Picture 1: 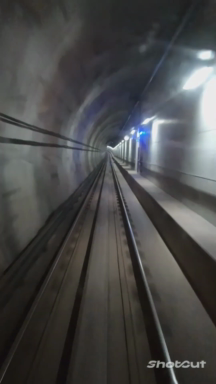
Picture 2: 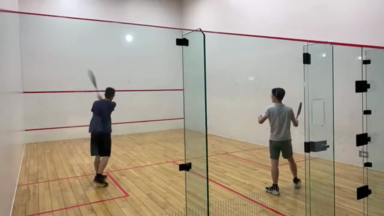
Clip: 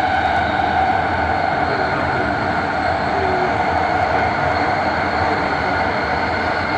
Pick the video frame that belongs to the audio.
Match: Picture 1